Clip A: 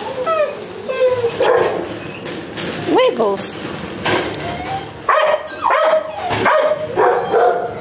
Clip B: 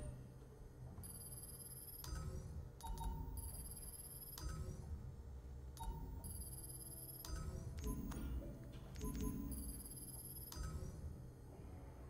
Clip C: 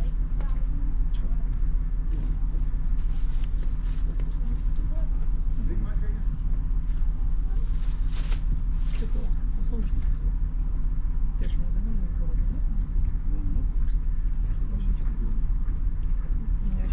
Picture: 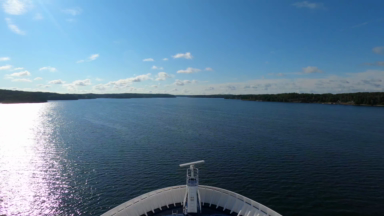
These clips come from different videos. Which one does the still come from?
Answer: C